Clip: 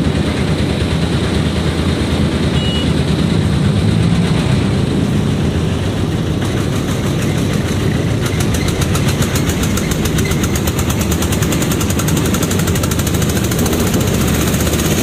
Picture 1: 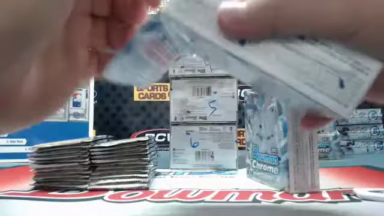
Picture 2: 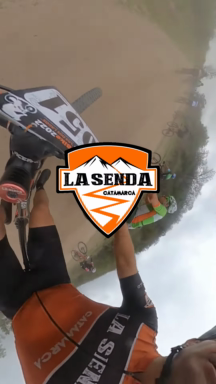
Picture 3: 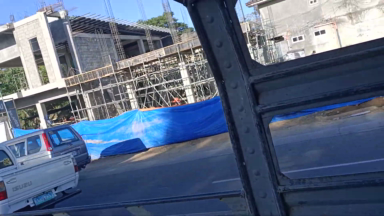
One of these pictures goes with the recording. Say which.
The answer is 3